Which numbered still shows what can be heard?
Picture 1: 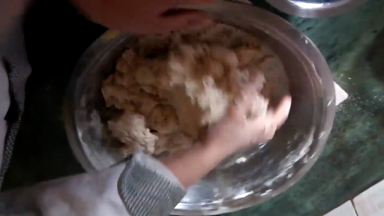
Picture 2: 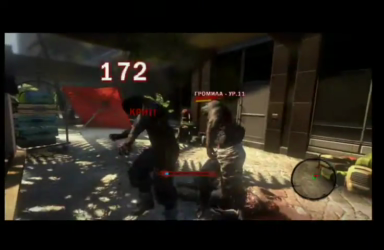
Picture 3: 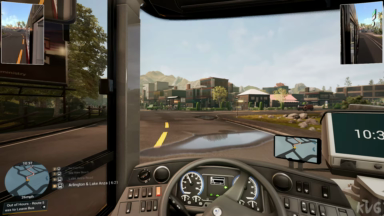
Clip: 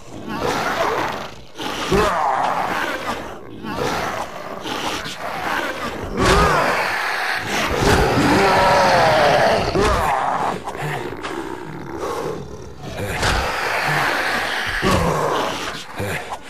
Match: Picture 2